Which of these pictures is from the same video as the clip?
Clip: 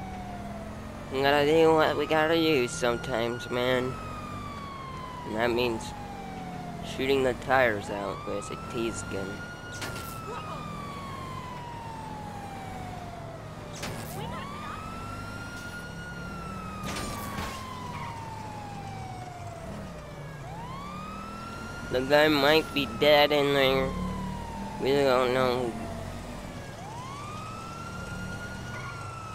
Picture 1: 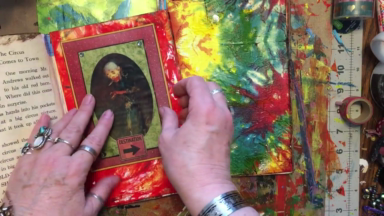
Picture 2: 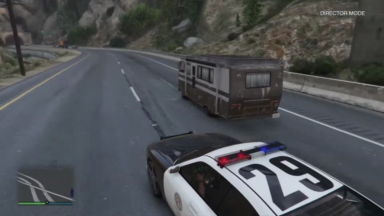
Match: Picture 2